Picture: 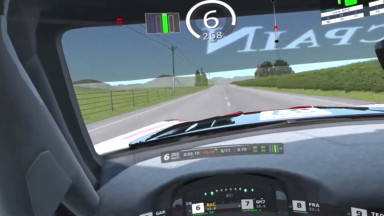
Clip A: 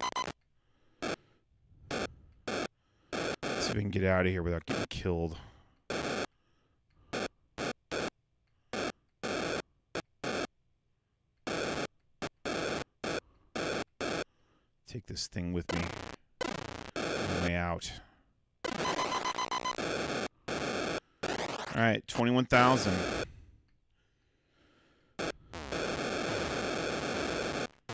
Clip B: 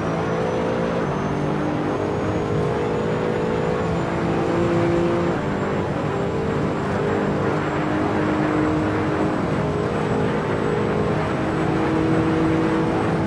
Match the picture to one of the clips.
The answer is B